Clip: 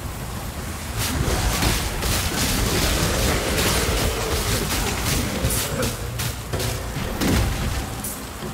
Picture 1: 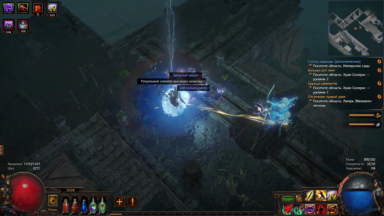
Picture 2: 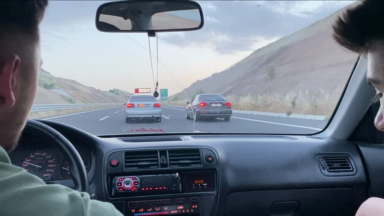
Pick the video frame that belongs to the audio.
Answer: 1